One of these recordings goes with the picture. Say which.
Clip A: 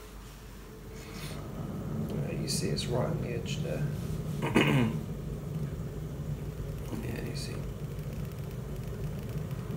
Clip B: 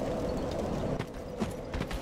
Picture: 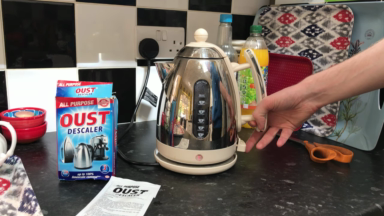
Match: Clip A